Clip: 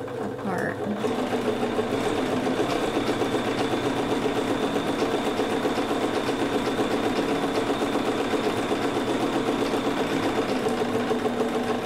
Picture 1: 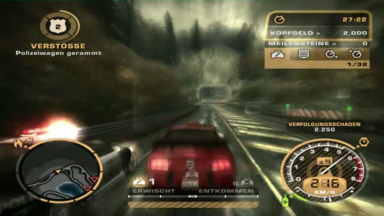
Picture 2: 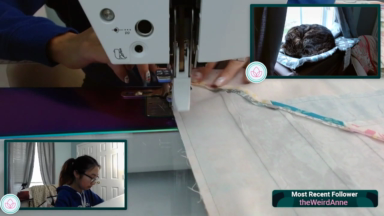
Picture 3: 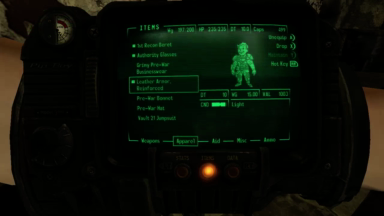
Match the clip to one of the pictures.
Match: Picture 2